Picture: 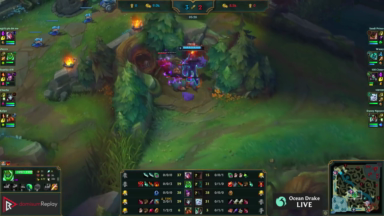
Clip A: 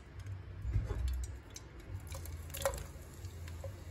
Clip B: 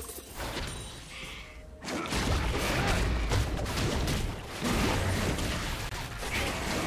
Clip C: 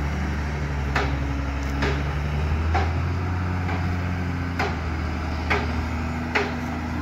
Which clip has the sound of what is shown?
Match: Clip B